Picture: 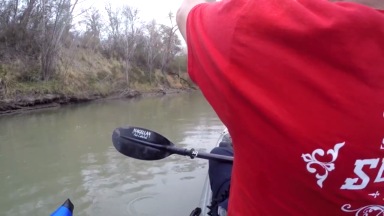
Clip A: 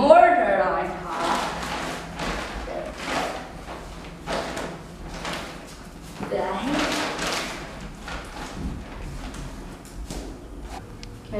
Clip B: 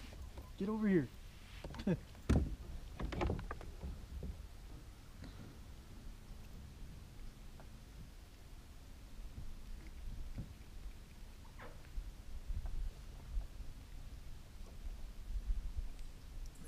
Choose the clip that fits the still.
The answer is B